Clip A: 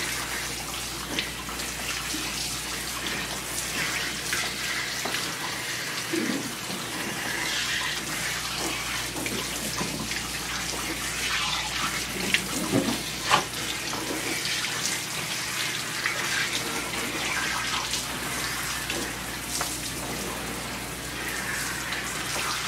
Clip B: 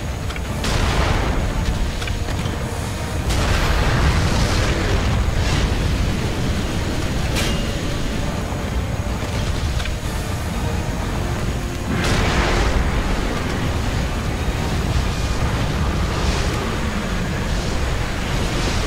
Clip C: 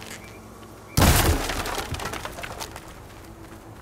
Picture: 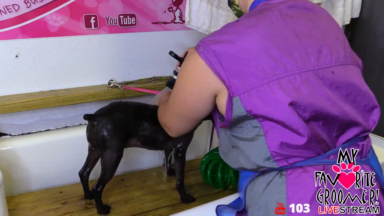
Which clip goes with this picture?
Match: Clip A